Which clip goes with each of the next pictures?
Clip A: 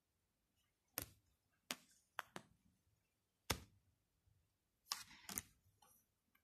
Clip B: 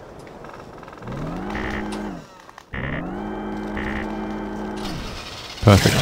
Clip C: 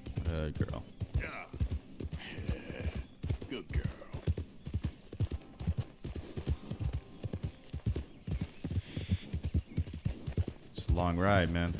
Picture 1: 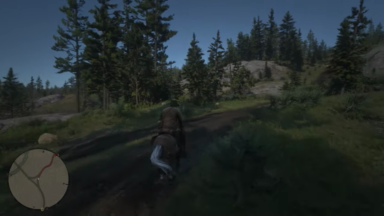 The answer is C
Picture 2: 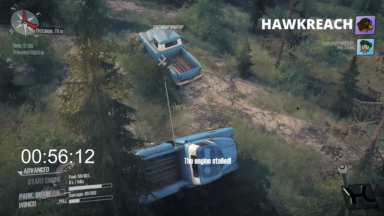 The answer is B